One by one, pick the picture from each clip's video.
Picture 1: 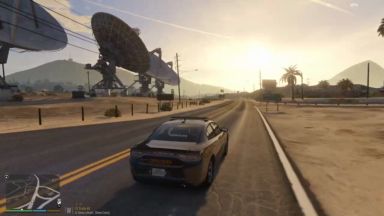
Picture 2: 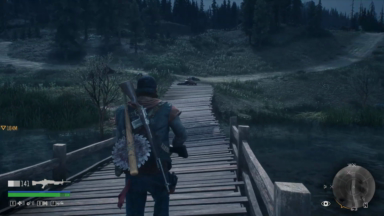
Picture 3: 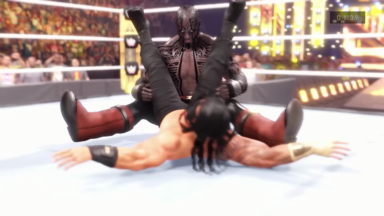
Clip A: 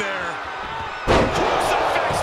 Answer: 3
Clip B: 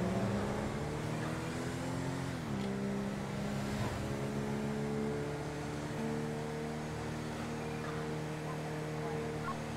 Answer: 1